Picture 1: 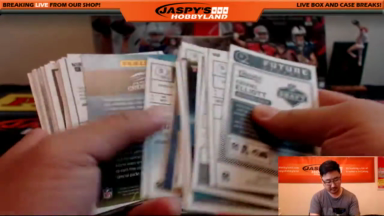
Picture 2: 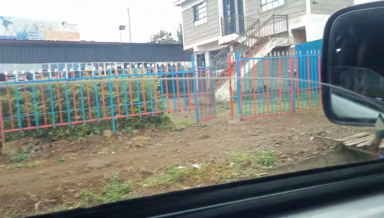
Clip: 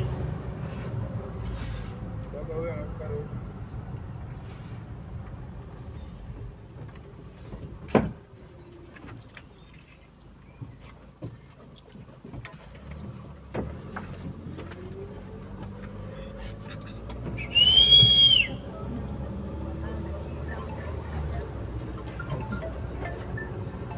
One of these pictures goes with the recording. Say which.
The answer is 2